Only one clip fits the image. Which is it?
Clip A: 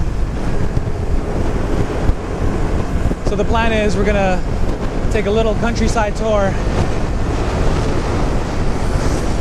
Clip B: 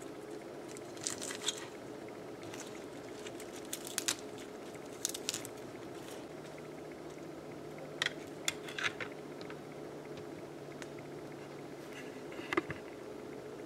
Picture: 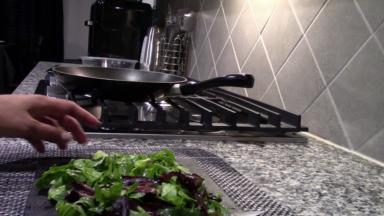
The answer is B